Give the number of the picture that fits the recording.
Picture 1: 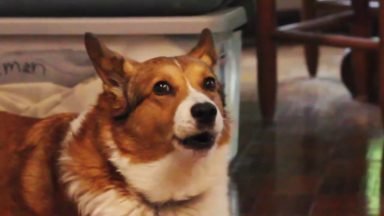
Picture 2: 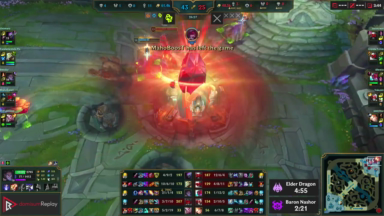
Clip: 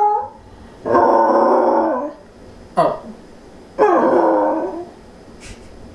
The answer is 1